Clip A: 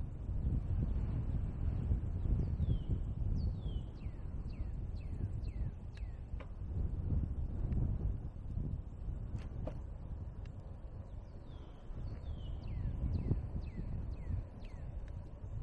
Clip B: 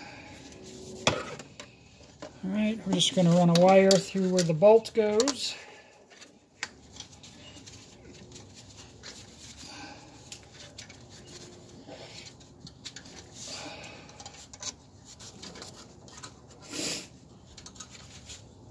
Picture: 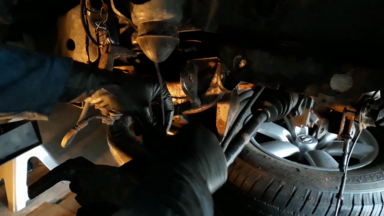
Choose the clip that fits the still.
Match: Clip B